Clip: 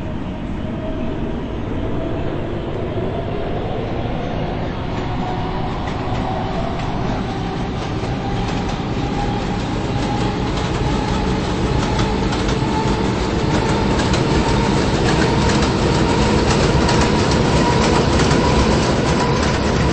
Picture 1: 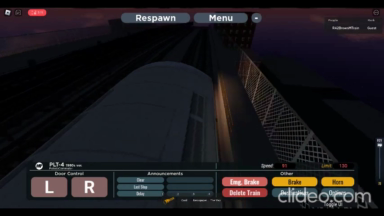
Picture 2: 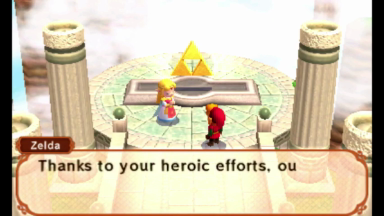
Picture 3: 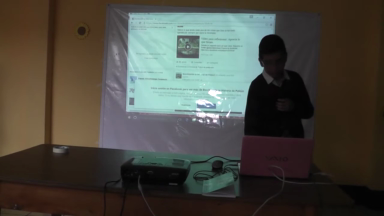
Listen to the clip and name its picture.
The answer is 1